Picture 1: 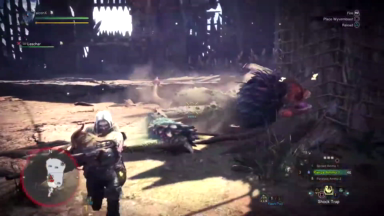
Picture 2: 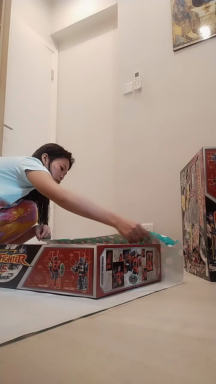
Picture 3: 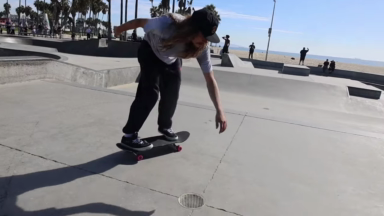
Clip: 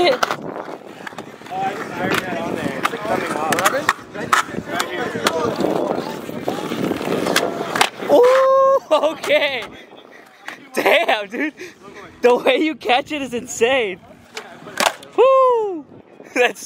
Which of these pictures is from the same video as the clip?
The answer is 3